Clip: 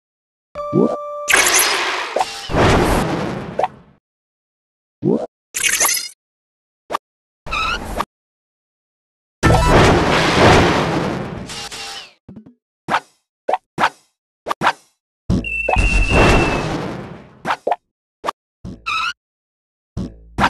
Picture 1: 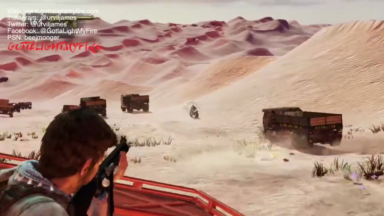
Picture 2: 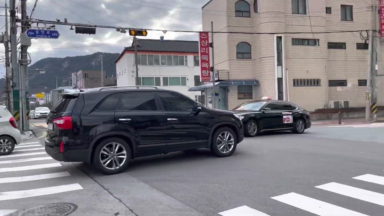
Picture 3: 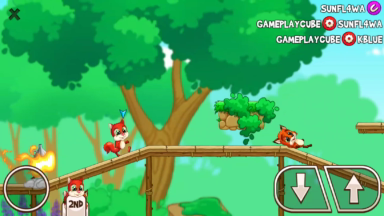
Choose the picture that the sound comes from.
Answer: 3